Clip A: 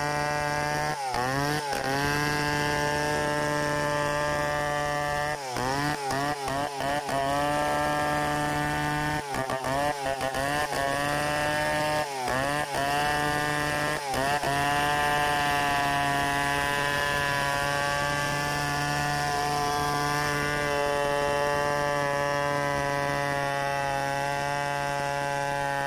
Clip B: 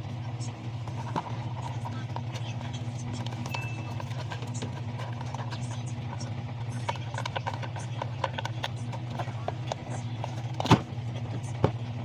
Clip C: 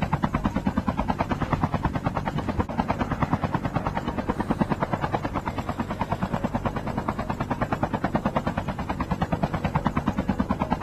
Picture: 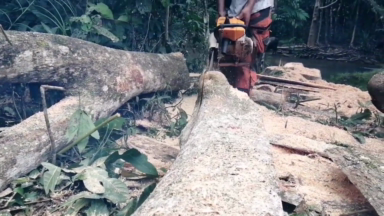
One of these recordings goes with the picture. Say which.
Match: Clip A